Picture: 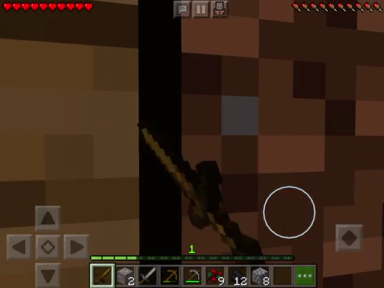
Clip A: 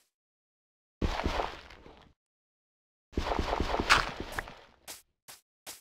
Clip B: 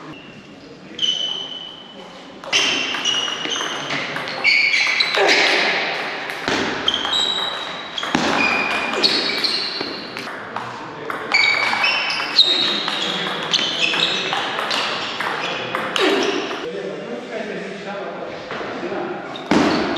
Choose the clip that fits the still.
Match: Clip A